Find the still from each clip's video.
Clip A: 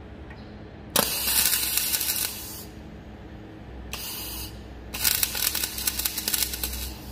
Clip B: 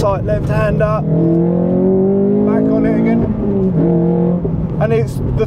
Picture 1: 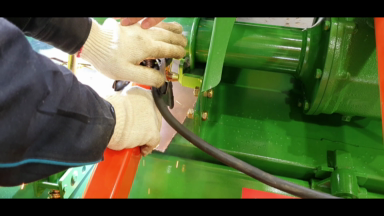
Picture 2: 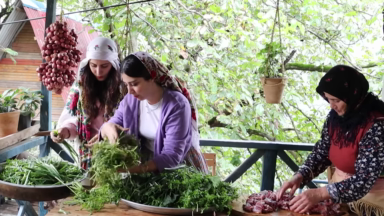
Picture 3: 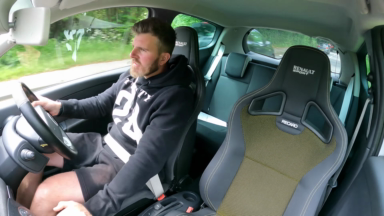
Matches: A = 1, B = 3